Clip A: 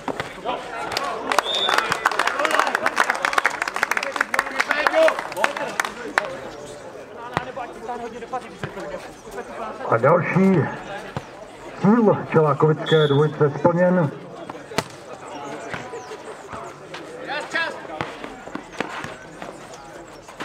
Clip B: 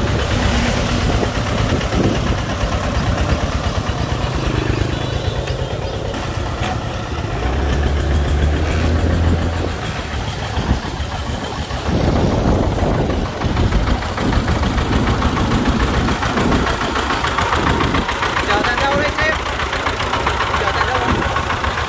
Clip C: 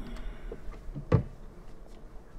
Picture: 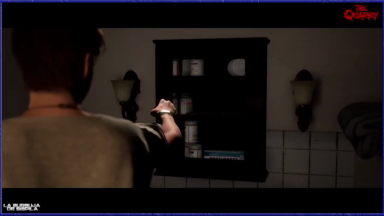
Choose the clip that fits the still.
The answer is C